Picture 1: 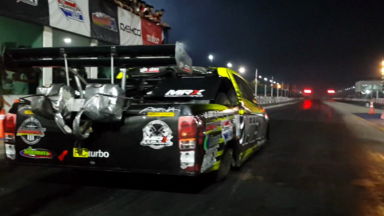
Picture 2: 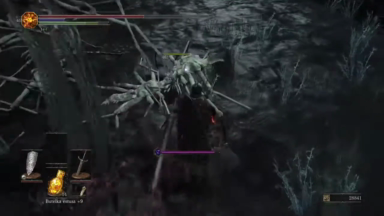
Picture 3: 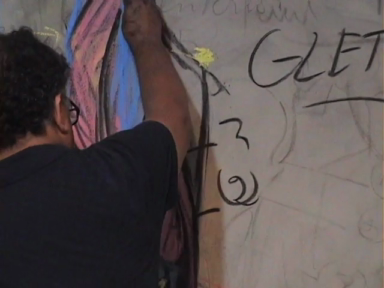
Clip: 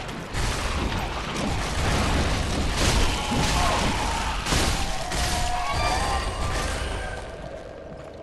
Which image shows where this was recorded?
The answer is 2